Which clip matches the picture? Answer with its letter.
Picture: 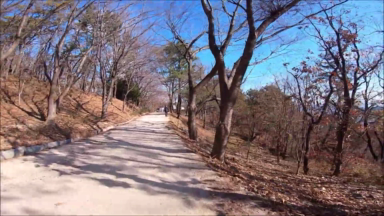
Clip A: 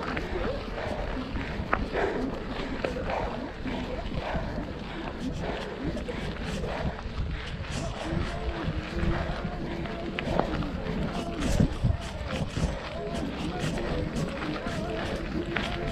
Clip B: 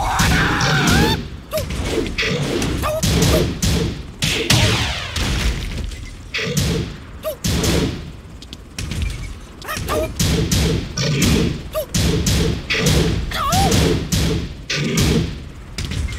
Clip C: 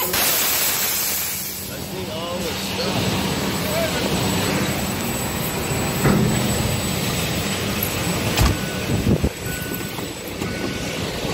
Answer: A